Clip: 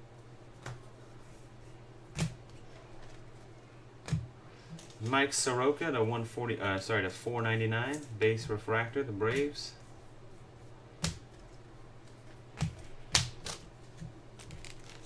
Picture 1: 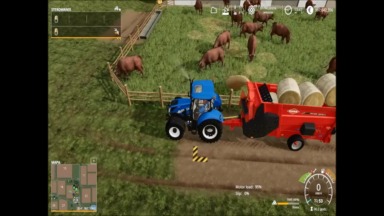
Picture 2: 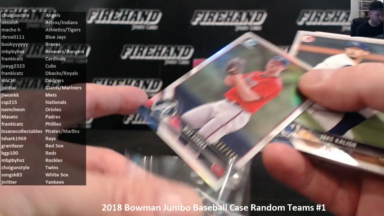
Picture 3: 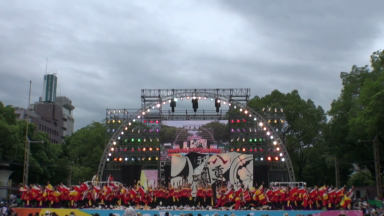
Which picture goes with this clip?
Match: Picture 2